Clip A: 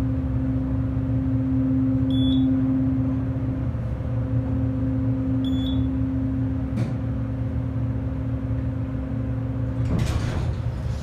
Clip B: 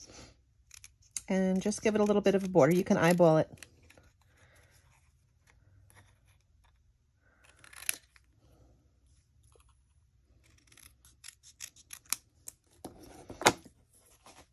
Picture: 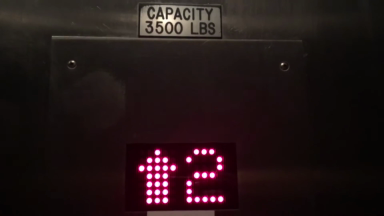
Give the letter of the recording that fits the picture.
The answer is A